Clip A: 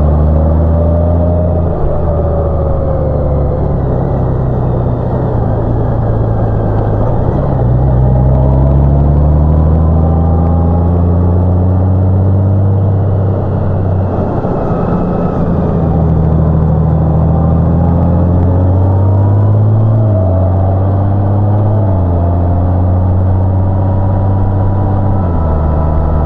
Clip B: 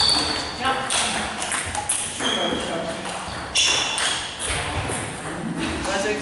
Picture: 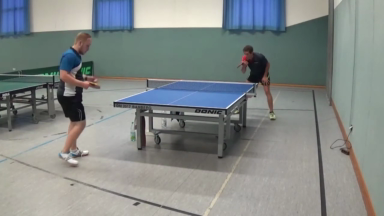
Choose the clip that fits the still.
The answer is B